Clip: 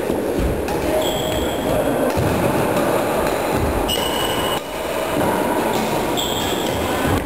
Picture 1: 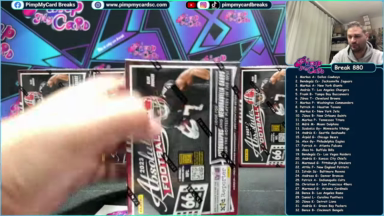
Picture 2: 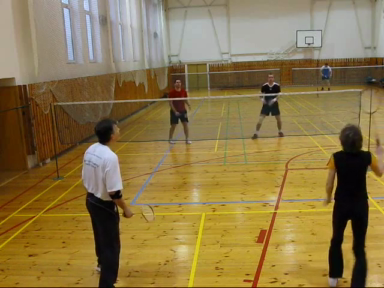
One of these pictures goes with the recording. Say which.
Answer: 2